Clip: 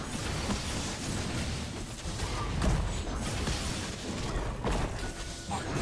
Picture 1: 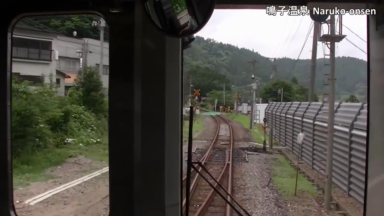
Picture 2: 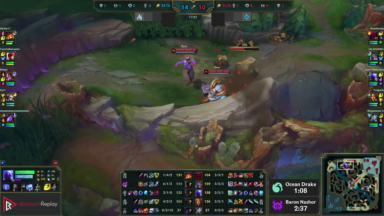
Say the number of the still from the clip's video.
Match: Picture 2